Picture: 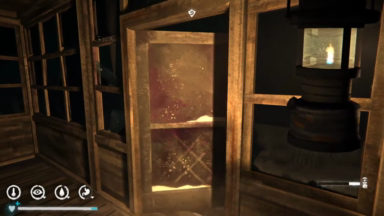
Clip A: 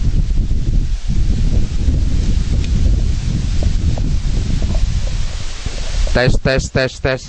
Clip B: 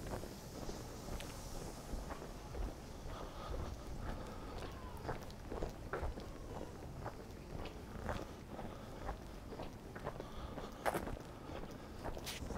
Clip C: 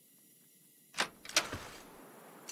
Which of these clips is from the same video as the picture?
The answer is C